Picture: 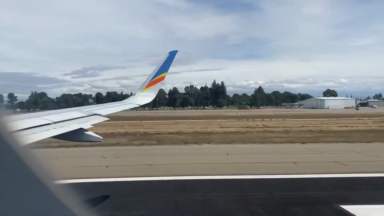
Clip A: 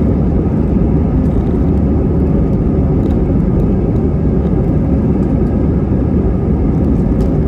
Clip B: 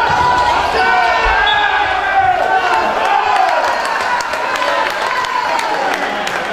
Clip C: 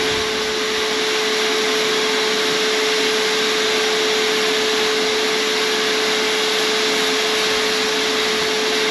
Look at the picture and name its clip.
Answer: A